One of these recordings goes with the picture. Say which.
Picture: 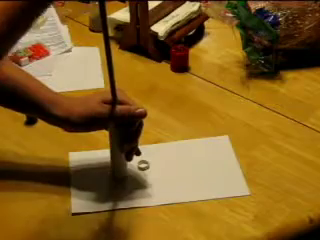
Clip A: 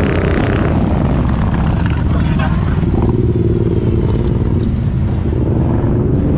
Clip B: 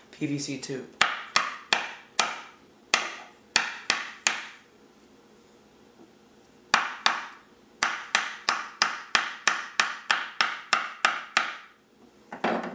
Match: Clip B